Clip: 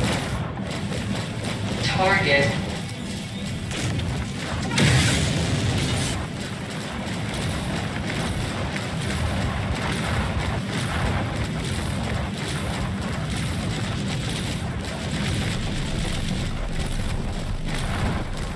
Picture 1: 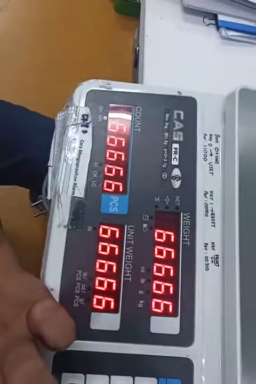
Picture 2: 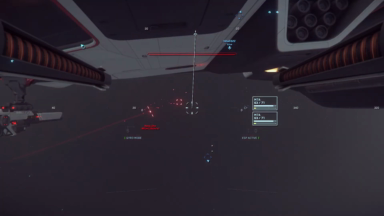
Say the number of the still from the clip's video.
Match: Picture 2